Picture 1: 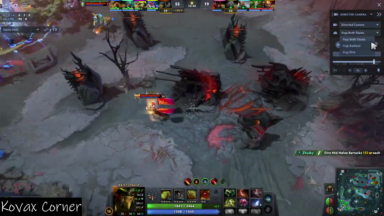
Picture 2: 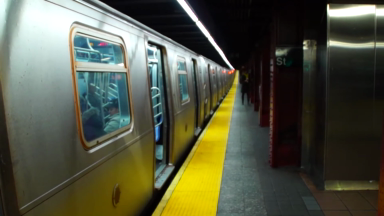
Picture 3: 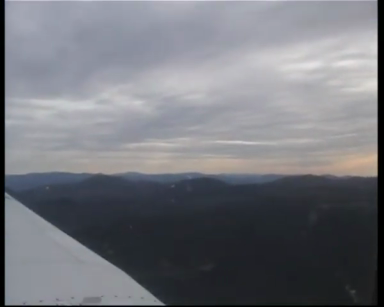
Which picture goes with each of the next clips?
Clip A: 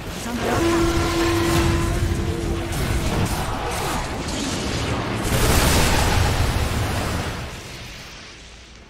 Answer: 1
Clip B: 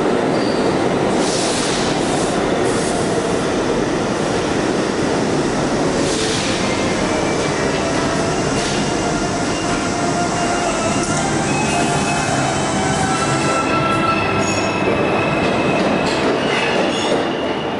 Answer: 2